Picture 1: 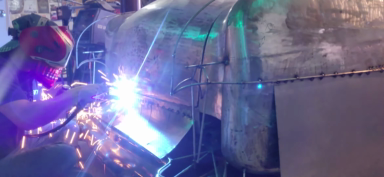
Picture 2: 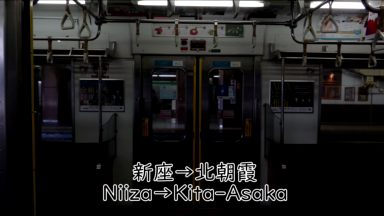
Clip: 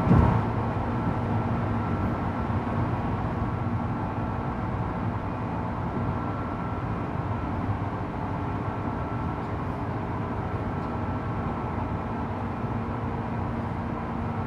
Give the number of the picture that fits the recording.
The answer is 2